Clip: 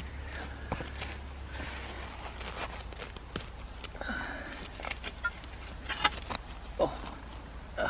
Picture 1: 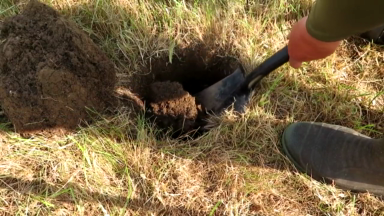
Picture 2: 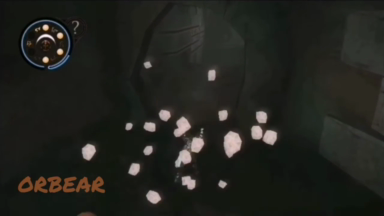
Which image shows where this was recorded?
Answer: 1